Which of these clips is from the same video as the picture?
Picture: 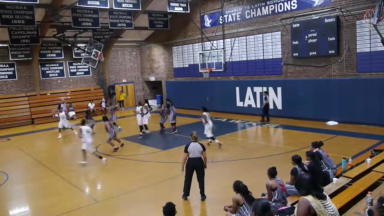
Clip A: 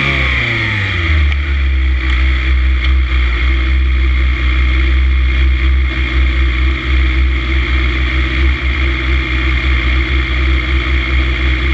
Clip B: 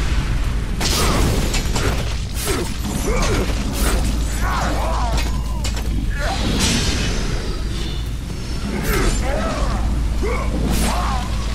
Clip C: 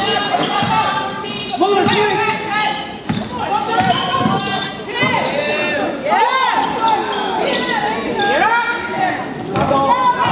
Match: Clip C